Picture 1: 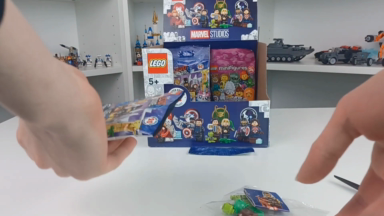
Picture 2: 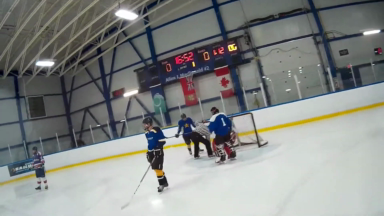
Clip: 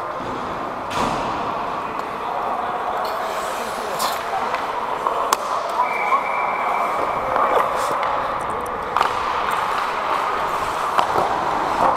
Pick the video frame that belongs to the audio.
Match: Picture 2